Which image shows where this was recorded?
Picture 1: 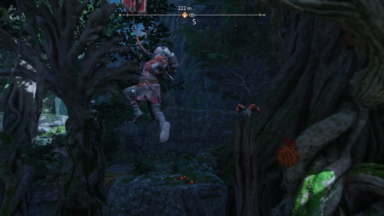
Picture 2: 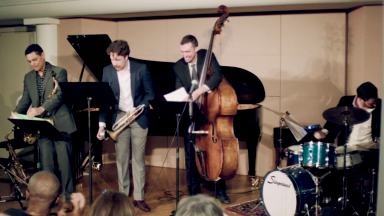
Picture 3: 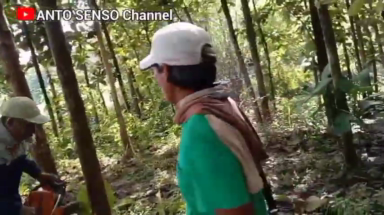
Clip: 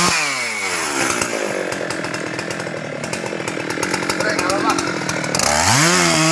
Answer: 3